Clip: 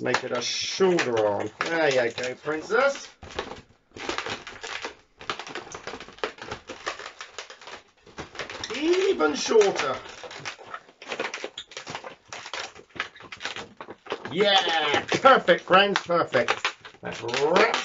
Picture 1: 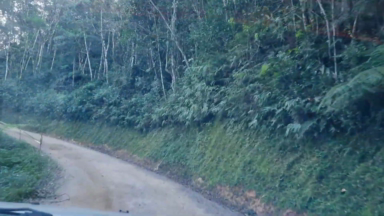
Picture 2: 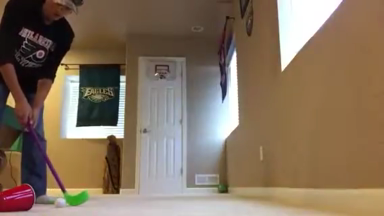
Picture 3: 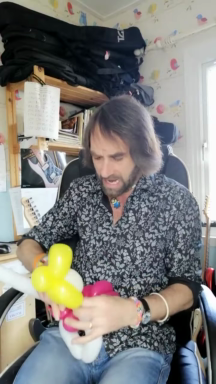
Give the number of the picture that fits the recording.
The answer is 3